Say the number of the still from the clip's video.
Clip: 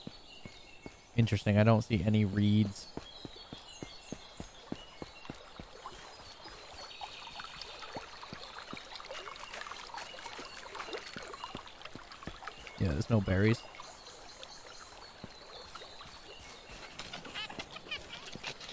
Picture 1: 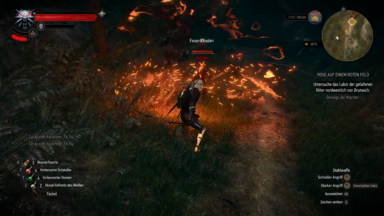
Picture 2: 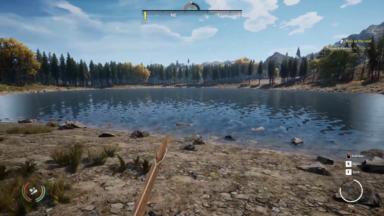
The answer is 2